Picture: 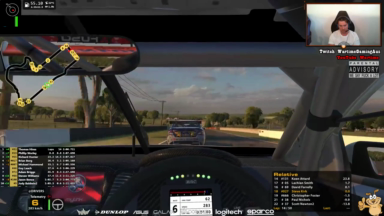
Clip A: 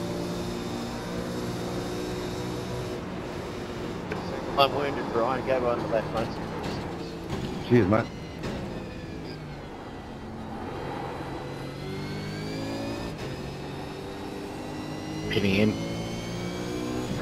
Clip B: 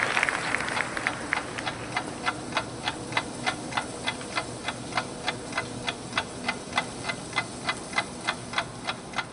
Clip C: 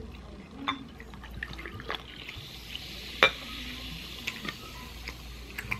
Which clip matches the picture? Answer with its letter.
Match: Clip A